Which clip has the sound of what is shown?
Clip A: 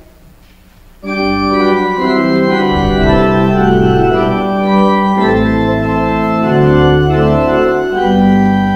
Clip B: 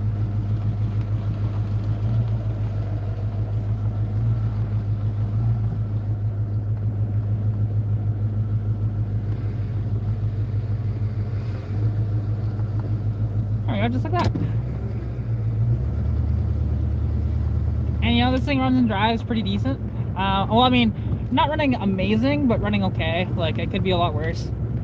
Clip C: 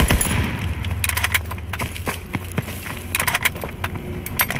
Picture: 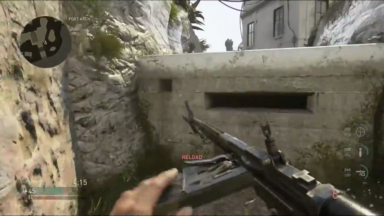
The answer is C